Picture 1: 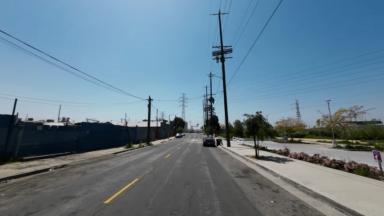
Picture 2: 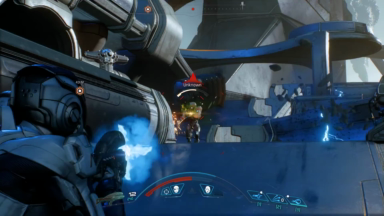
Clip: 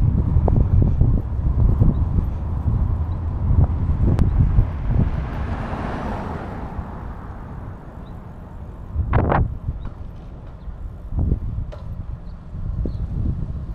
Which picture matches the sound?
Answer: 1